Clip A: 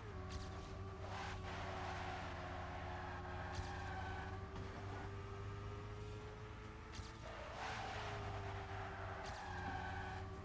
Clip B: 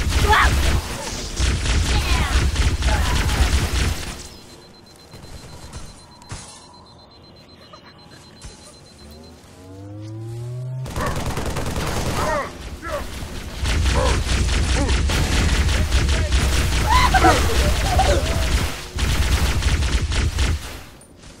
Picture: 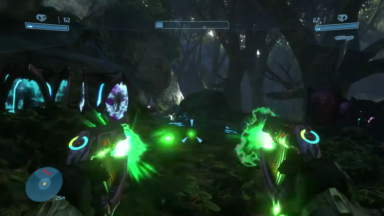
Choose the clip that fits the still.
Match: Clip B